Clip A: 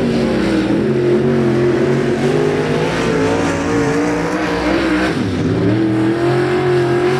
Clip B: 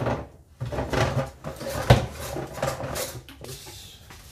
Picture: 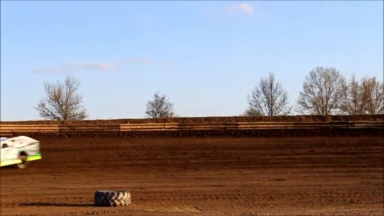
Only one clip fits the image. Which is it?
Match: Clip A